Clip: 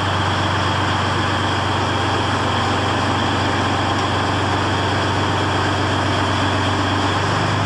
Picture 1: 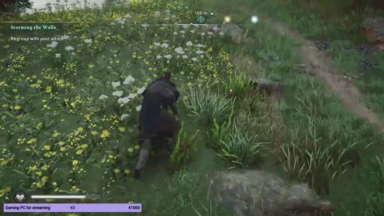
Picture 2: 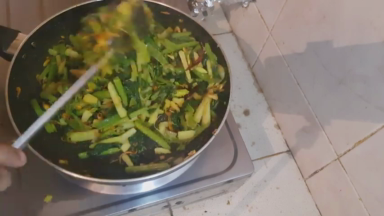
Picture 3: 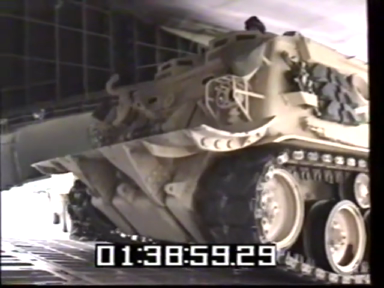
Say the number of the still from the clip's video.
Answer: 3